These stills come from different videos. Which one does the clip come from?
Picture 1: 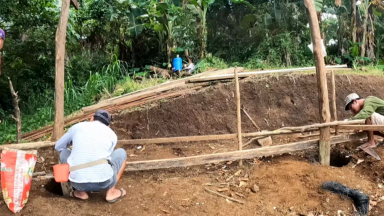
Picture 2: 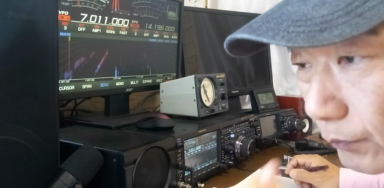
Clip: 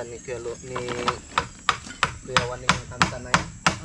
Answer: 1